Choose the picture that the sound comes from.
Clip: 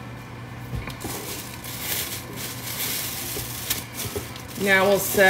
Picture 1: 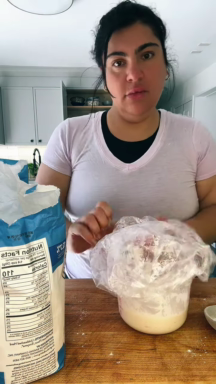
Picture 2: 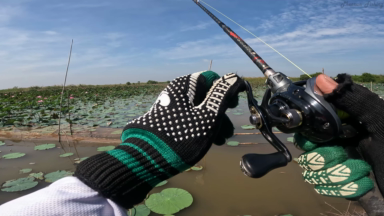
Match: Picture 1